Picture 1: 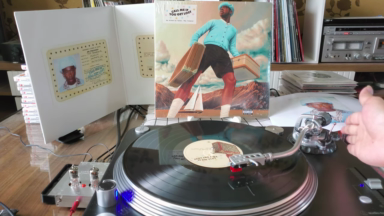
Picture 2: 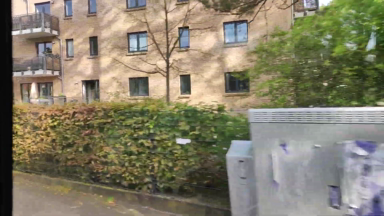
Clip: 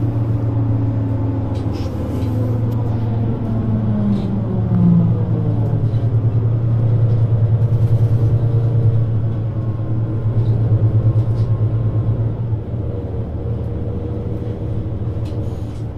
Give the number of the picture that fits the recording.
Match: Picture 2